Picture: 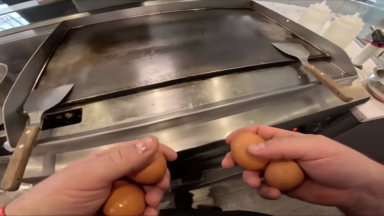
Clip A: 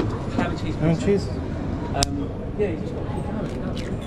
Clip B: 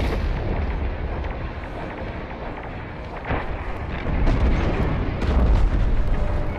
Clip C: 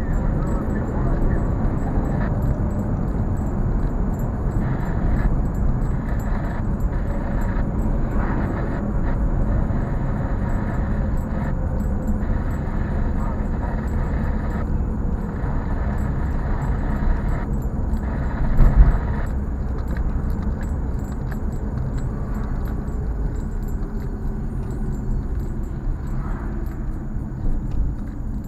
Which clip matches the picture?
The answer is A